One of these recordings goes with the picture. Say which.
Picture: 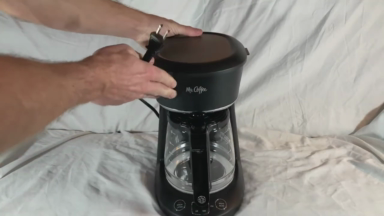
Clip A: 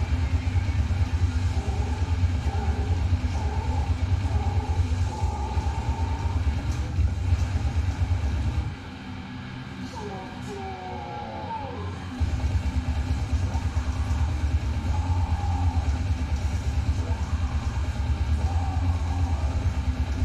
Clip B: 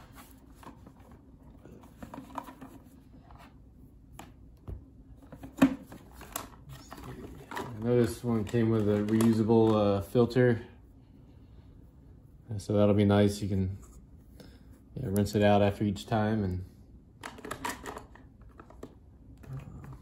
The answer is B